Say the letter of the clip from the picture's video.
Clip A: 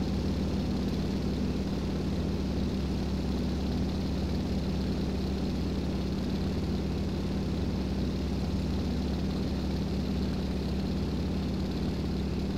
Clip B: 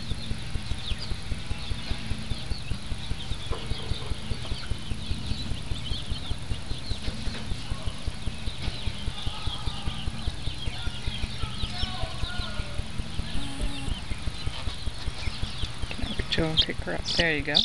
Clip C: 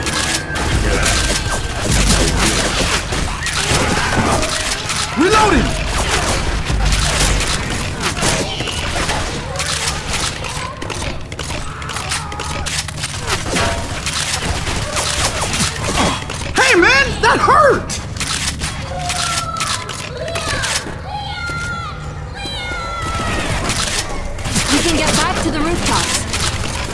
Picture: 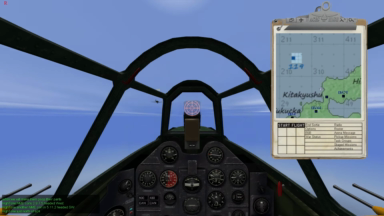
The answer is A